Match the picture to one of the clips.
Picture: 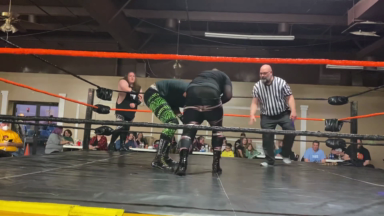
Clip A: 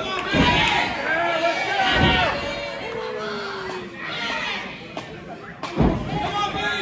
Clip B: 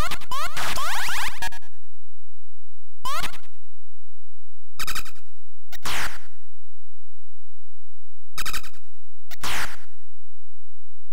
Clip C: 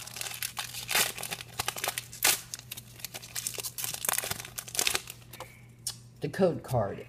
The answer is A